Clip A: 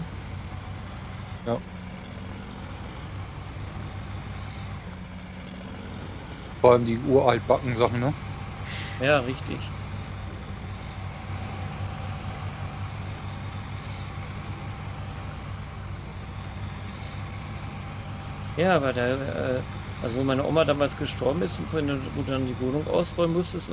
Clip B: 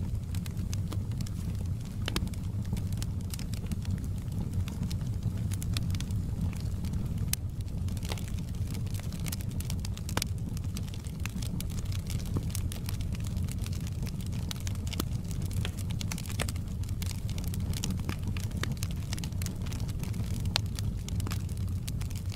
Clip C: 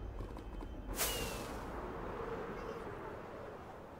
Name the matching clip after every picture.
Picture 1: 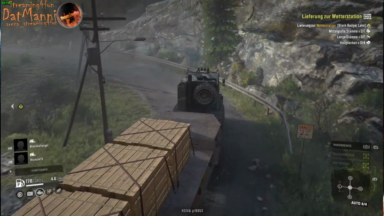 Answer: A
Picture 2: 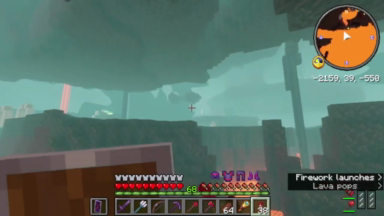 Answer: C